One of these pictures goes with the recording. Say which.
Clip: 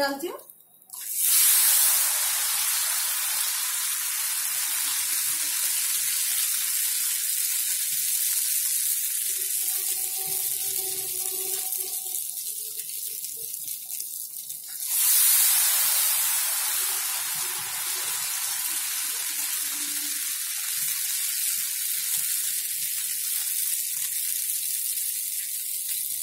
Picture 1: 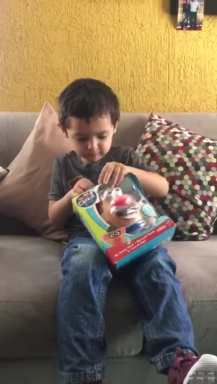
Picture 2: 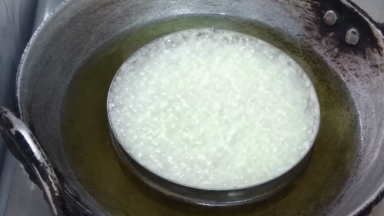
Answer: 2